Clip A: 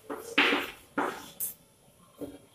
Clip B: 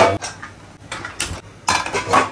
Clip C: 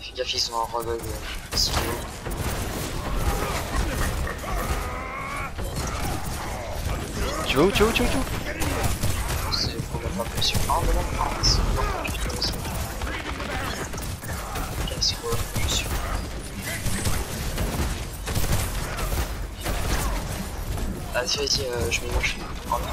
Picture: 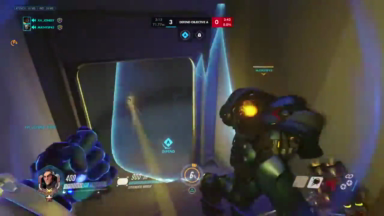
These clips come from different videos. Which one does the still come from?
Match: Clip C